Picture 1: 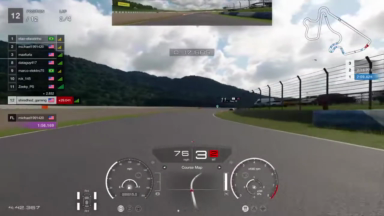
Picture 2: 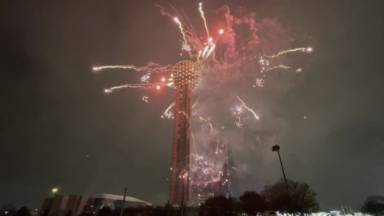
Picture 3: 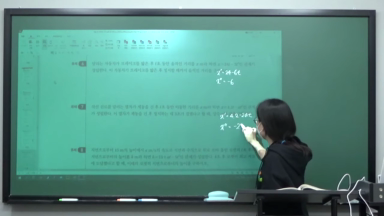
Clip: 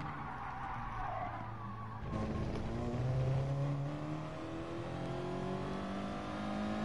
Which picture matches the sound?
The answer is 1